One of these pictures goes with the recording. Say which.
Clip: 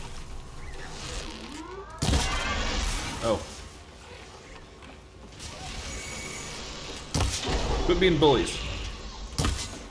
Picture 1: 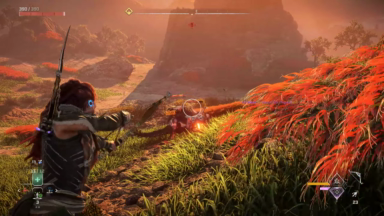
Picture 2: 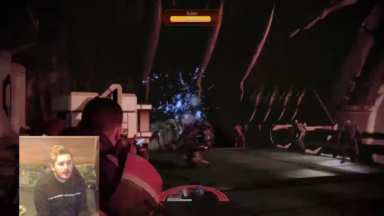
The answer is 1